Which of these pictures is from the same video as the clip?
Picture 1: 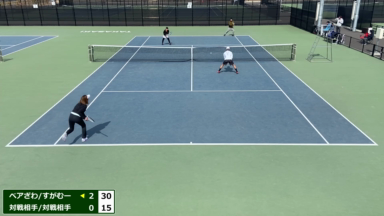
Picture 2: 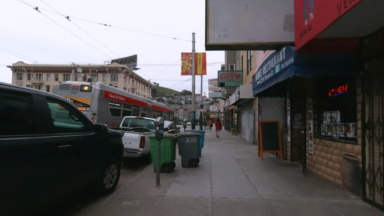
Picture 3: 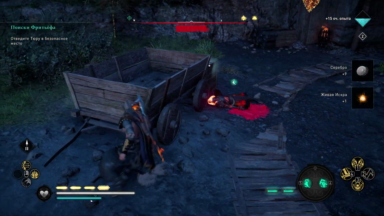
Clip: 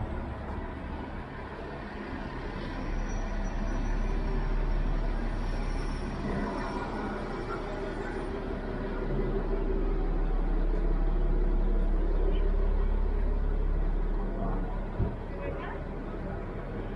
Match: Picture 2